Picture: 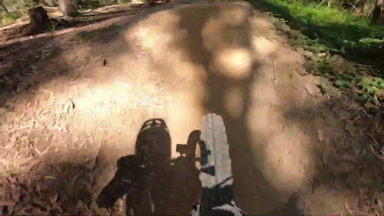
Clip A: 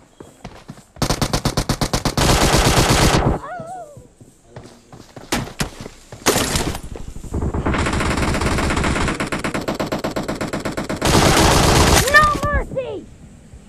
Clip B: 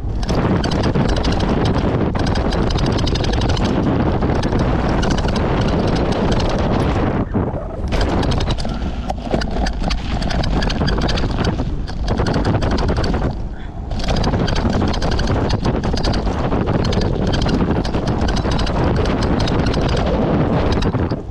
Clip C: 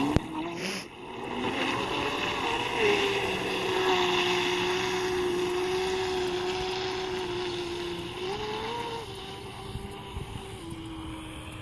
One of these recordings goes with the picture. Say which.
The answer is B